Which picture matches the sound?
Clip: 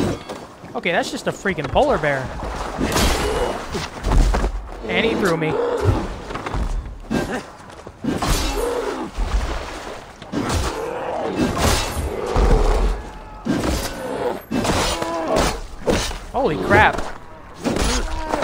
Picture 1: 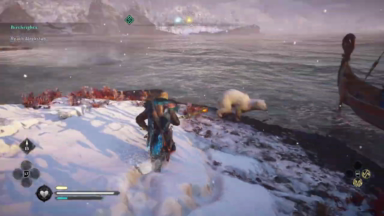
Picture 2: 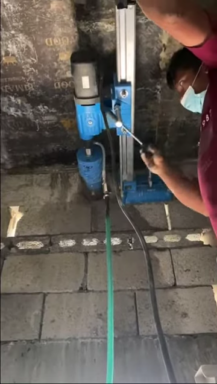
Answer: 1